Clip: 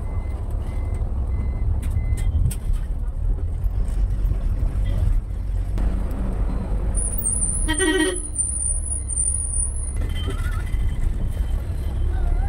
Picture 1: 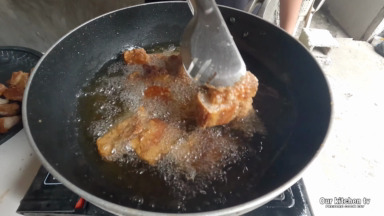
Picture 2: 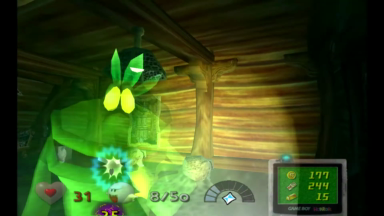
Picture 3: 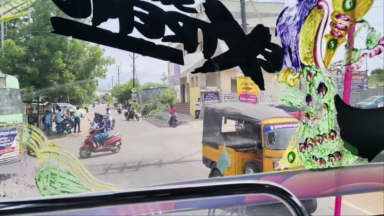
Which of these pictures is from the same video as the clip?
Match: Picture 3